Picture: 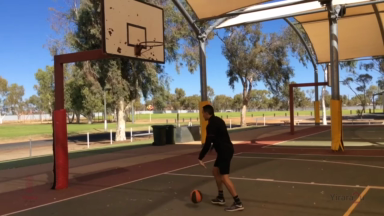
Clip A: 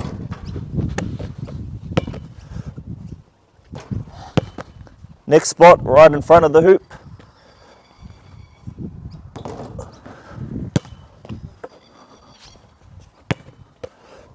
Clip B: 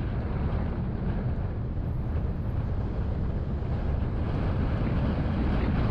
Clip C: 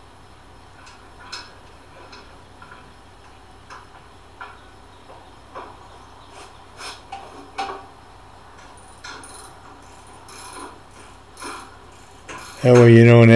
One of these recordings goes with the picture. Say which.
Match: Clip A